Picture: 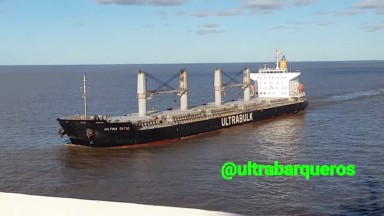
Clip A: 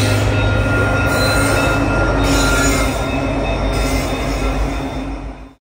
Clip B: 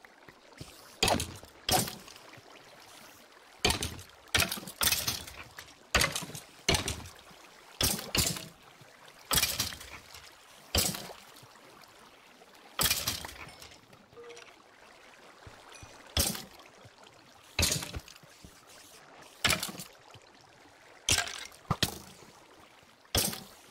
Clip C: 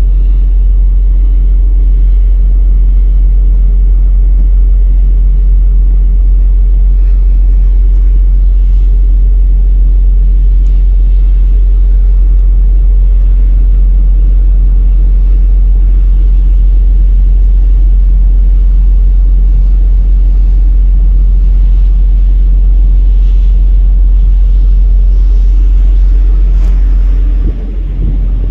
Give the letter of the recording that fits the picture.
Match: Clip C